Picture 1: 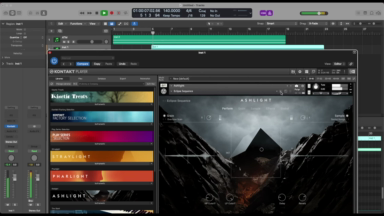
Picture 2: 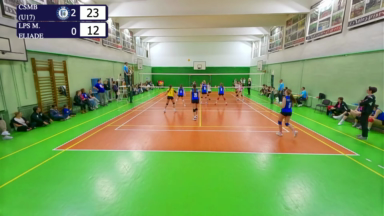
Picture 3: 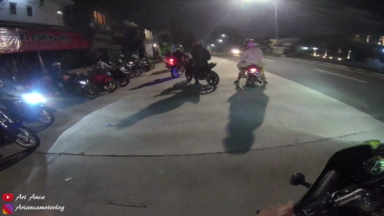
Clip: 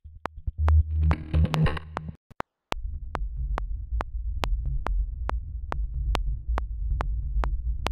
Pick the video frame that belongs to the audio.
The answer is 1